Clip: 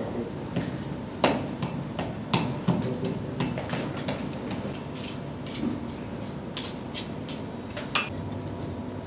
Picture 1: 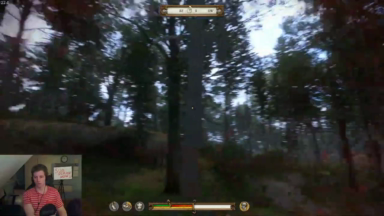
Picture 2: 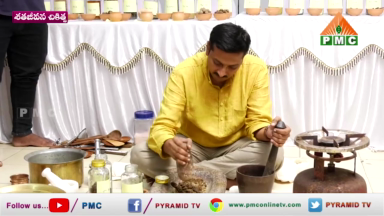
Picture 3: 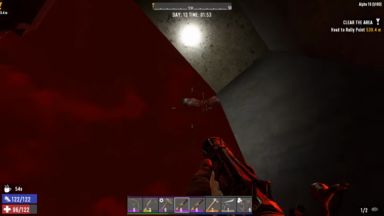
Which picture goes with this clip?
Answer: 2